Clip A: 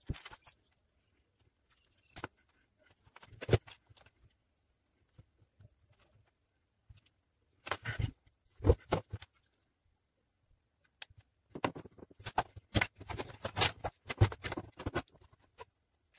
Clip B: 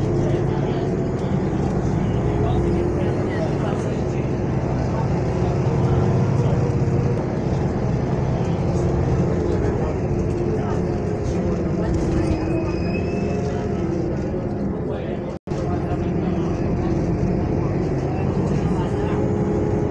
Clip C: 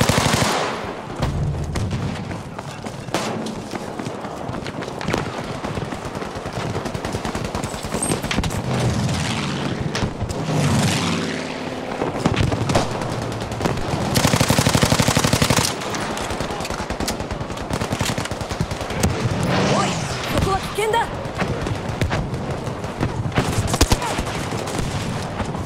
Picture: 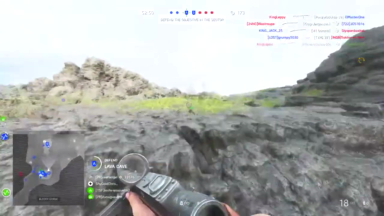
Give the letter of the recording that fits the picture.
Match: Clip C